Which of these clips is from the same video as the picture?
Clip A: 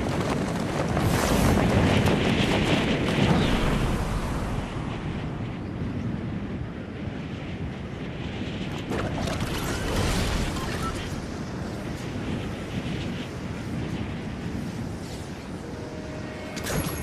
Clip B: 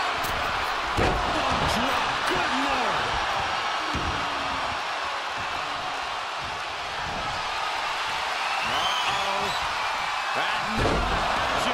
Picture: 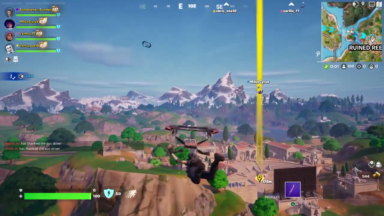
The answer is A